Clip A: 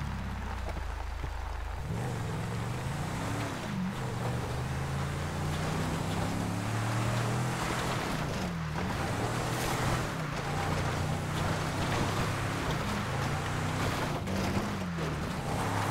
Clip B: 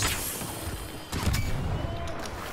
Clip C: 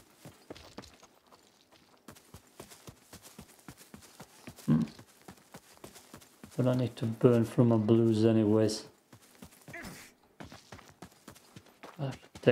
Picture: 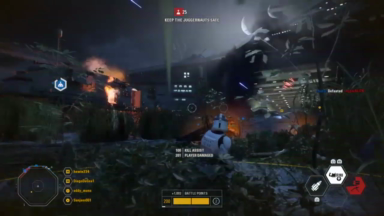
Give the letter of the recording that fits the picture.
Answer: B